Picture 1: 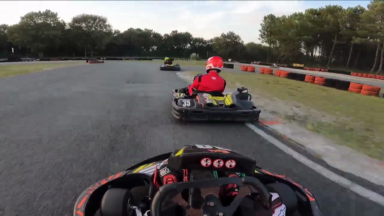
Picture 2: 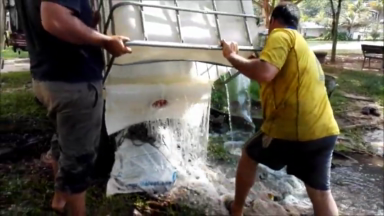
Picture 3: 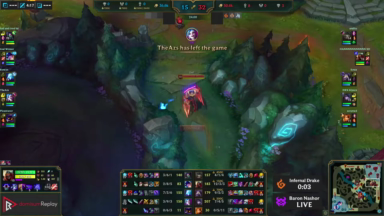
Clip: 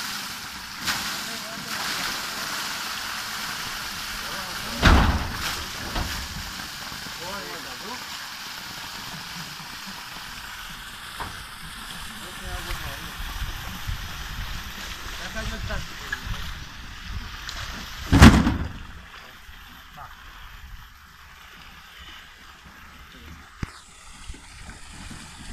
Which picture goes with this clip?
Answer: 2